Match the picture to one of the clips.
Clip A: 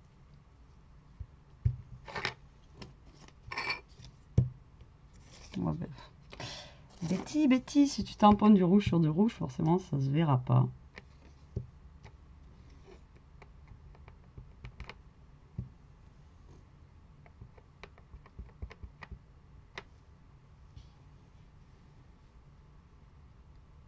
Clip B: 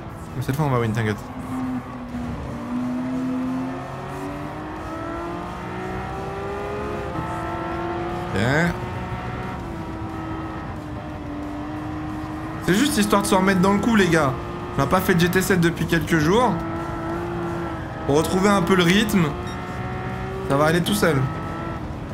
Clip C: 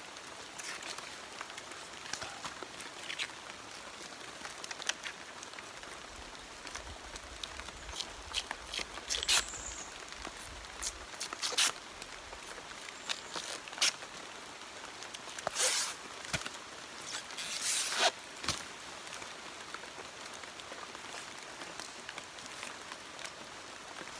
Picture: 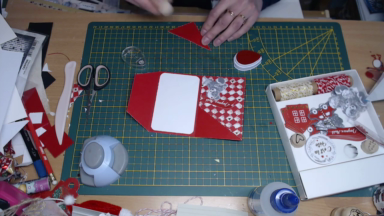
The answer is A